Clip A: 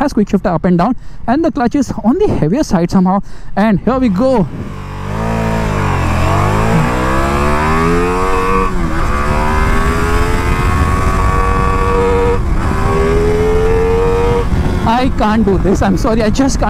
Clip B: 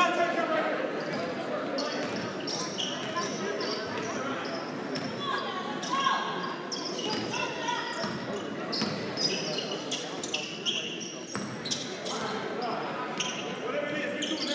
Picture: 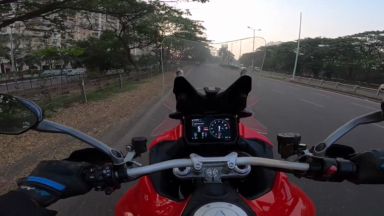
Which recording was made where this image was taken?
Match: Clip A